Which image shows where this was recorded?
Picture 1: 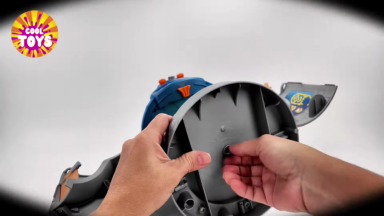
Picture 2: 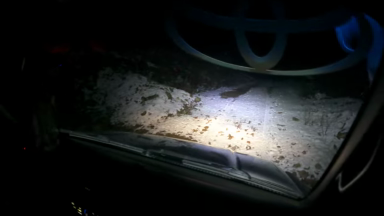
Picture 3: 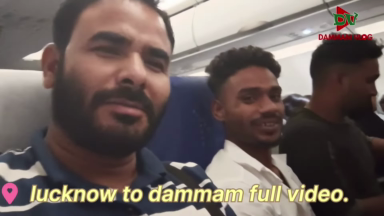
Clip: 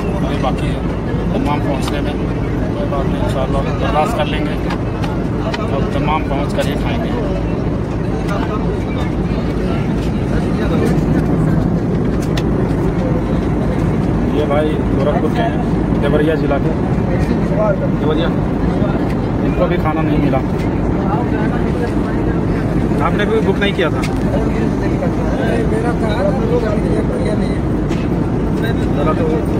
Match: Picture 3